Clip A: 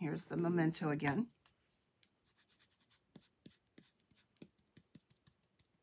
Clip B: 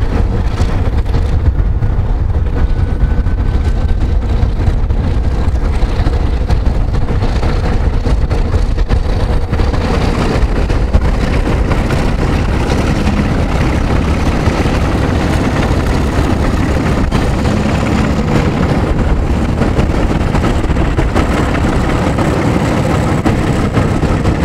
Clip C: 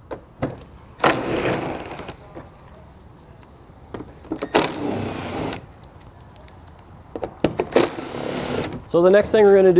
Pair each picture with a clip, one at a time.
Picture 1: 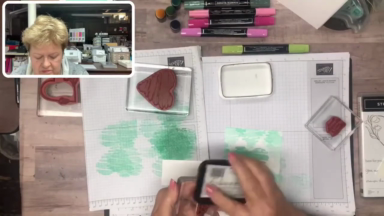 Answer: A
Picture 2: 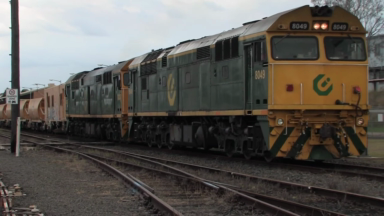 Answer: B